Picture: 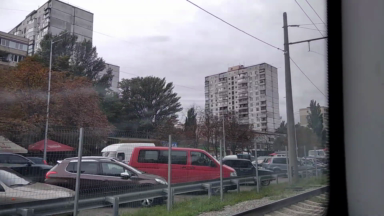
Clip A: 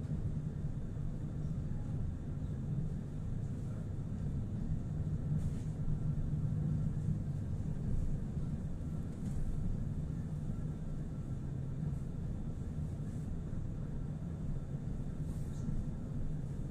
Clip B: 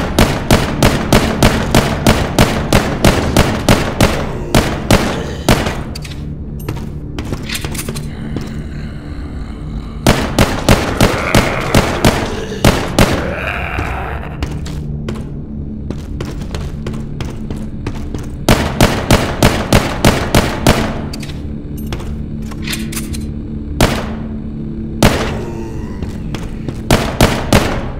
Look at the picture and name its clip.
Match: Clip A